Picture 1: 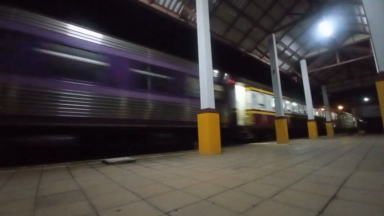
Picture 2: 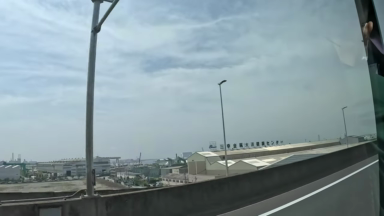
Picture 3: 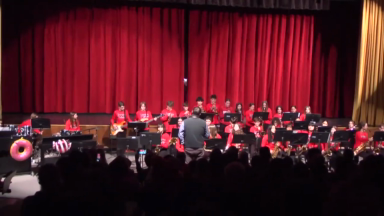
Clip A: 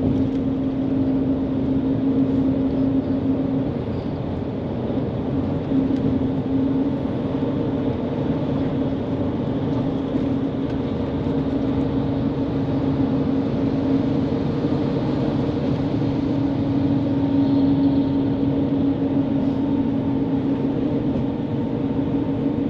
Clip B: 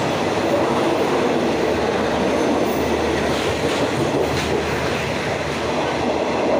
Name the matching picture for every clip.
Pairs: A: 2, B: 1